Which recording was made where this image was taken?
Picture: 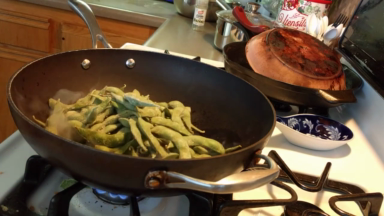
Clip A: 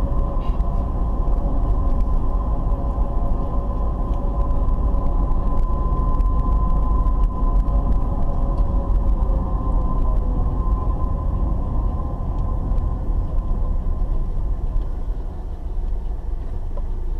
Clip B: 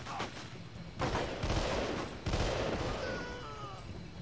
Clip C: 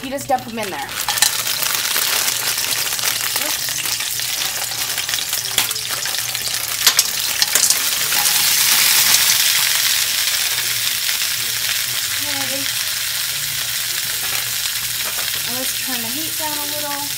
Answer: C